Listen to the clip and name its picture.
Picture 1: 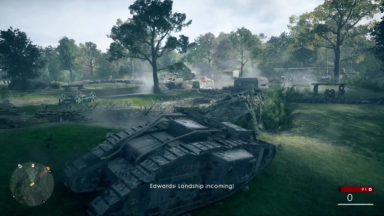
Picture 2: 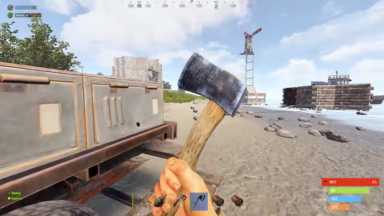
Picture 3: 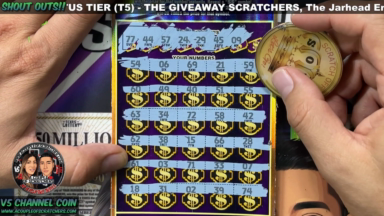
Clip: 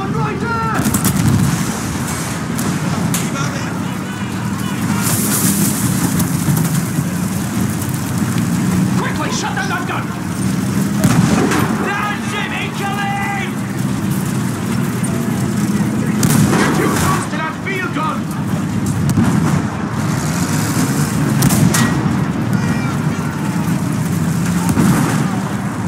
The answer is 1